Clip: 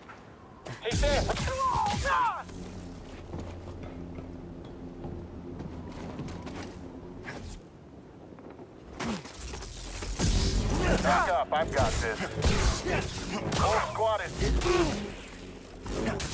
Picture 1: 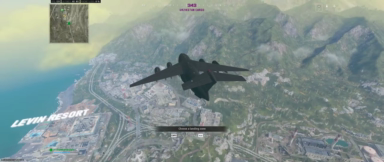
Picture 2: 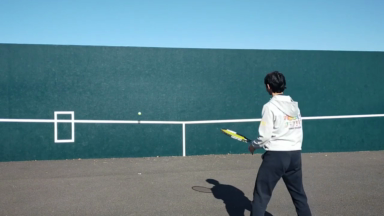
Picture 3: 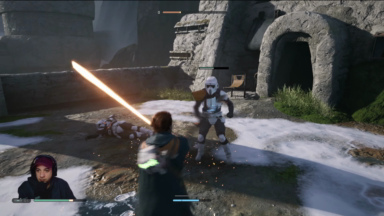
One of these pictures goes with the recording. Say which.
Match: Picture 3